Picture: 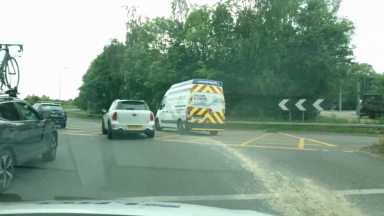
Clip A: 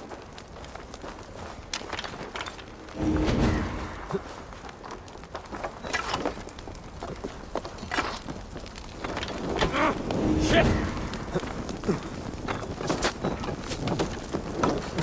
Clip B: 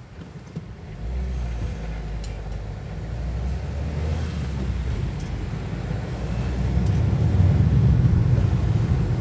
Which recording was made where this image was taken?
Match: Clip B